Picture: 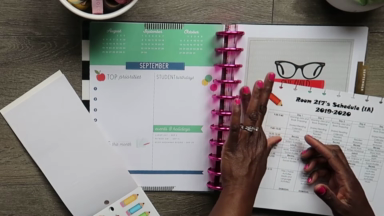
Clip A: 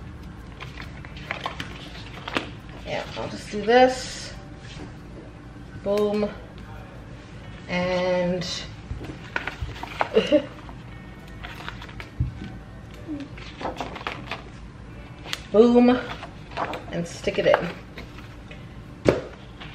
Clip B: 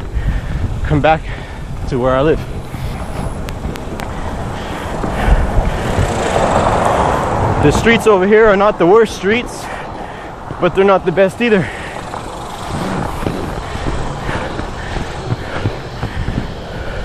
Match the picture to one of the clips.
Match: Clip A